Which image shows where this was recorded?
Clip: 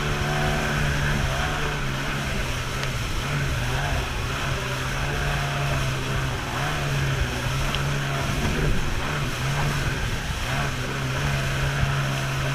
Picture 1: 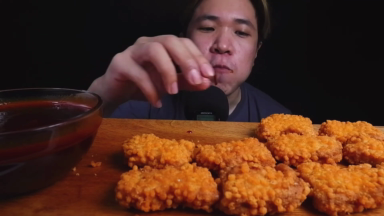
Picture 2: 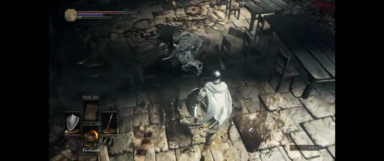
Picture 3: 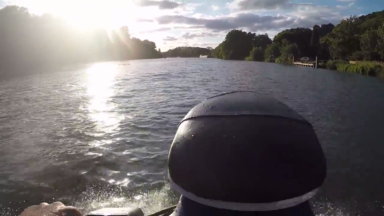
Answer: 3